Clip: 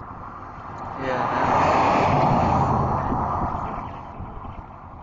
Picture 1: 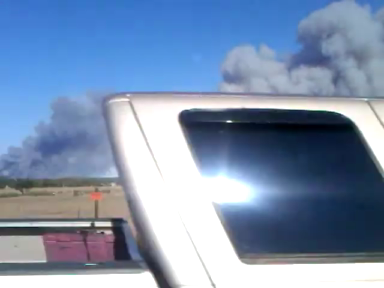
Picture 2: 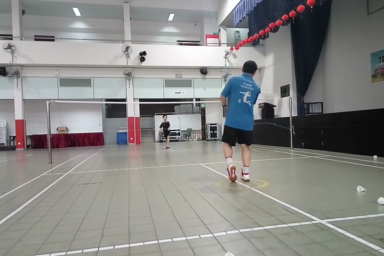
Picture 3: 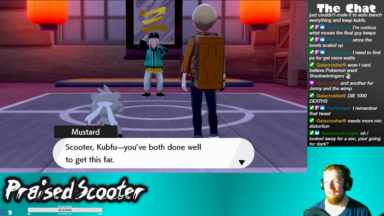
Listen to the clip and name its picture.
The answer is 1